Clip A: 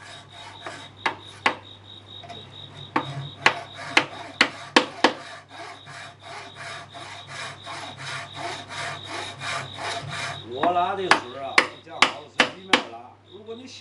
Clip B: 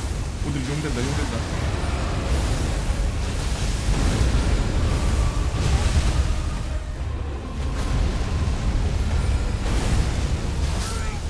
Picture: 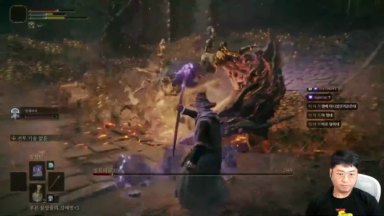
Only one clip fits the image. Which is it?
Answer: B